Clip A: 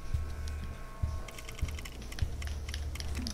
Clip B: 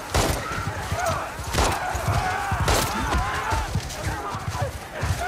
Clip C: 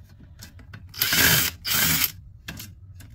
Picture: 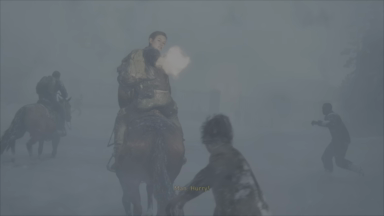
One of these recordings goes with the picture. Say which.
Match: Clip B